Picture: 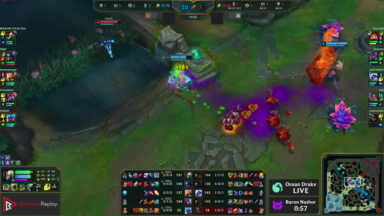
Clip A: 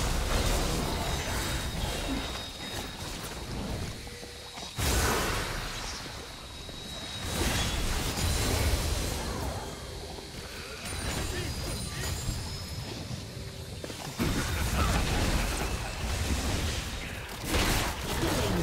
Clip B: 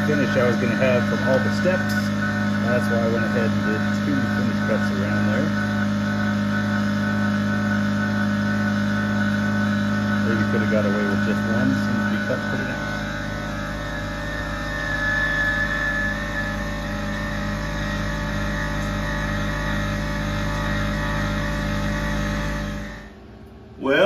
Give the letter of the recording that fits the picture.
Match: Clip A